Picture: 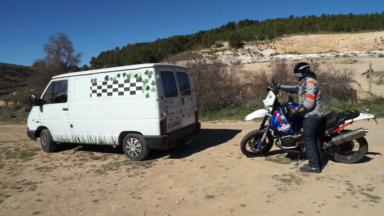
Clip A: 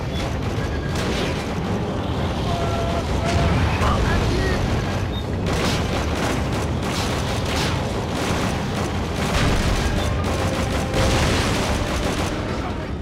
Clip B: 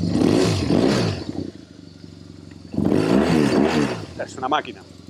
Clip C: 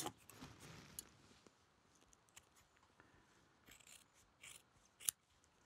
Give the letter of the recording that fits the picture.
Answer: B